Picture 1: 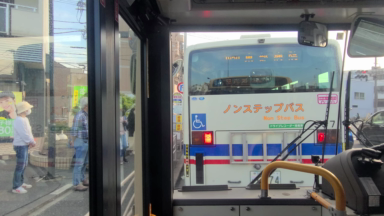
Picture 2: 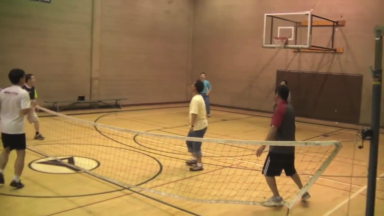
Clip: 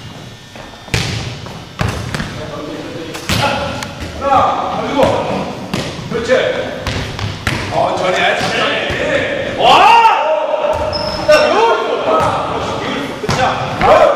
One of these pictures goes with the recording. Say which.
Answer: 2